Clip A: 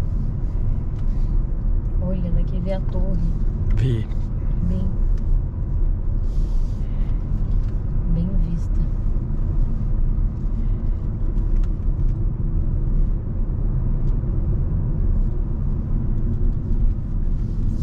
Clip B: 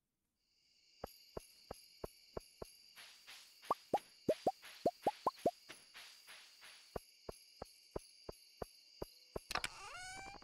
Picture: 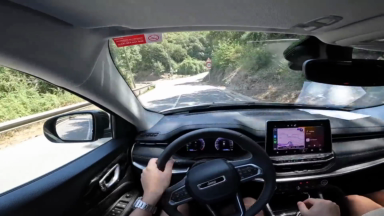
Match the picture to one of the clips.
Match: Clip A